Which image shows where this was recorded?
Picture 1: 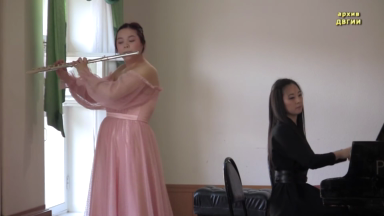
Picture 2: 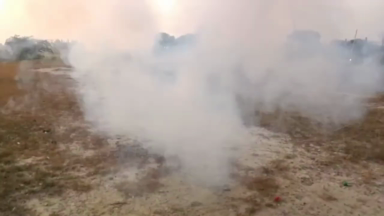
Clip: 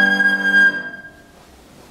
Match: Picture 1